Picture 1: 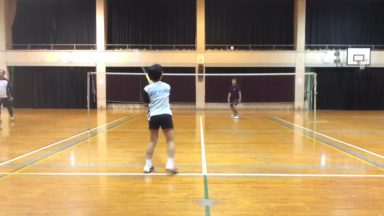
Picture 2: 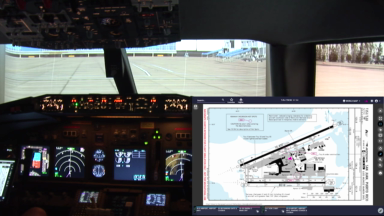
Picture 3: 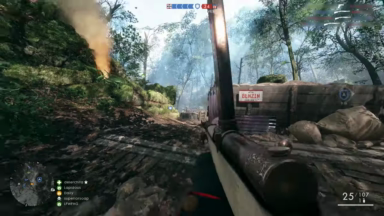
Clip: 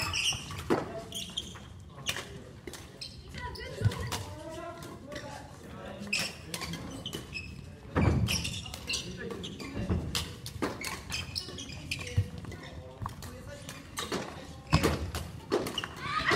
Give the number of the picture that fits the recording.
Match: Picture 1